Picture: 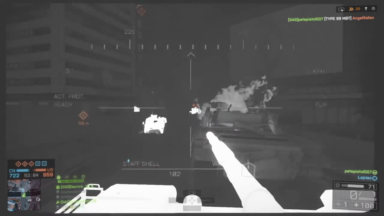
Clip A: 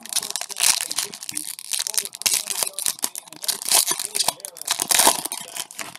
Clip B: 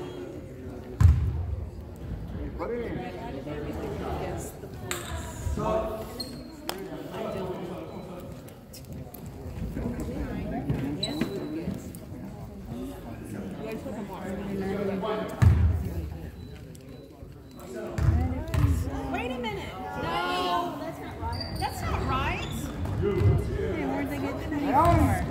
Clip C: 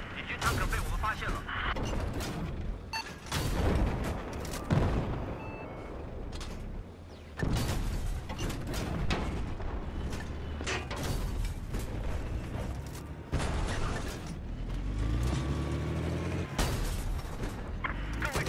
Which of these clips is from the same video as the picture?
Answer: C